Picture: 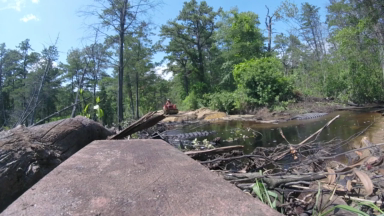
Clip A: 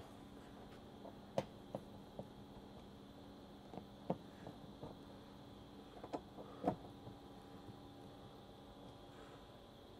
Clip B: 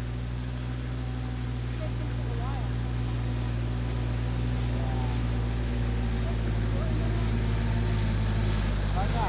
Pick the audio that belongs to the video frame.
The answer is B